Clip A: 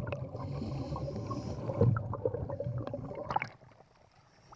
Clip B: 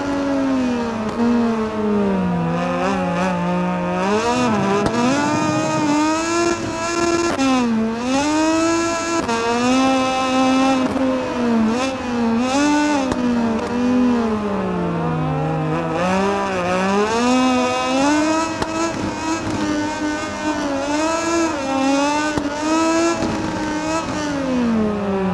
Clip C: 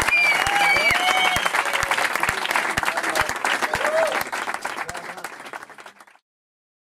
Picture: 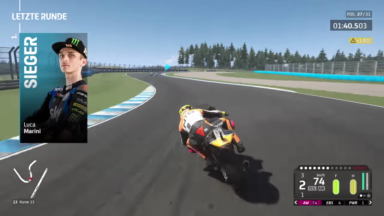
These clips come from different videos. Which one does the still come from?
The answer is B